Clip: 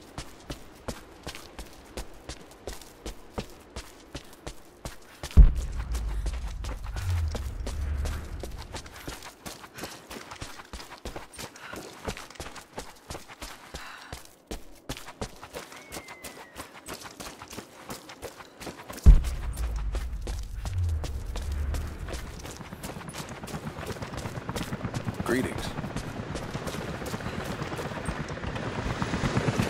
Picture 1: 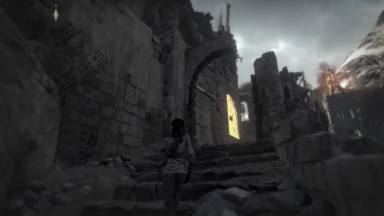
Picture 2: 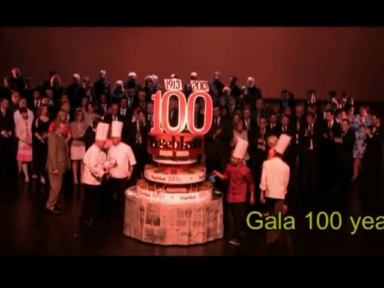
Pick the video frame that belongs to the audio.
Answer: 1